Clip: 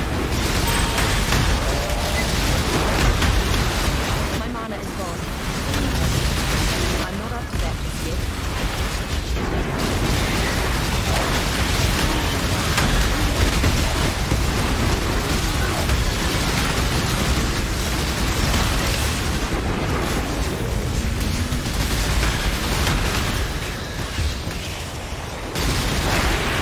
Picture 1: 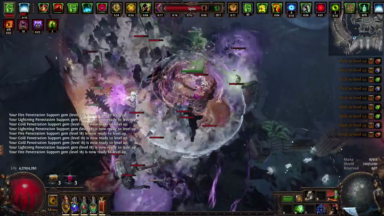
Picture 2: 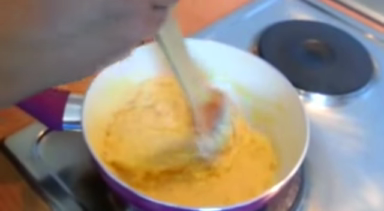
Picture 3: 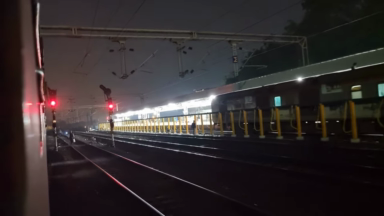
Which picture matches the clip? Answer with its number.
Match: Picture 1